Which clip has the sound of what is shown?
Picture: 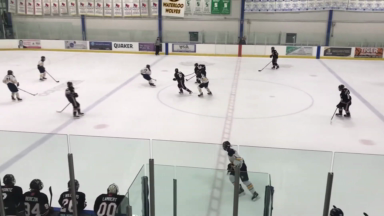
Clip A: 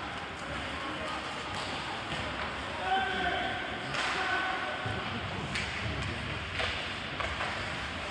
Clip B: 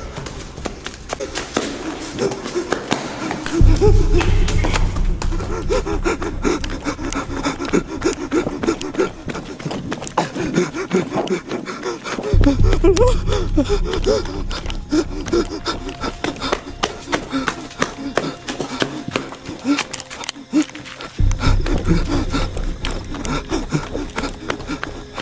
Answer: A